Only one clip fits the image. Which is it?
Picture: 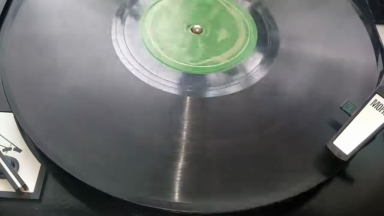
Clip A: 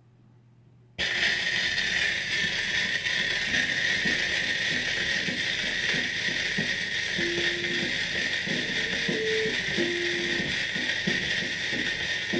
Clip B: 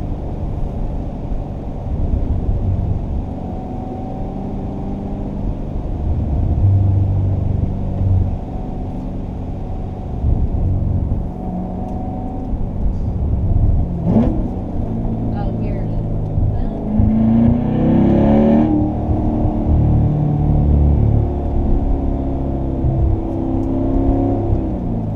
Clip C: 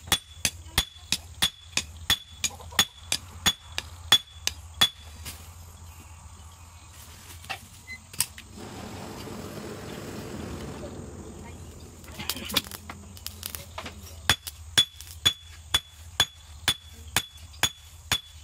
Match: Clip A